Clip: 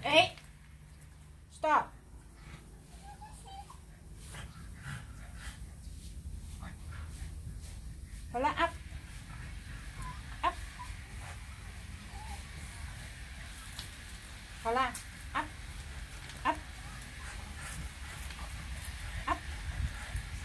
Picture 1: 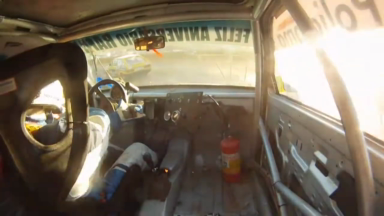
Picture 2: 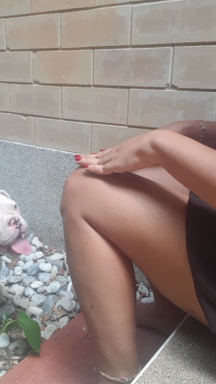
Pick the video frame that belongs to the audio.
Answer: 2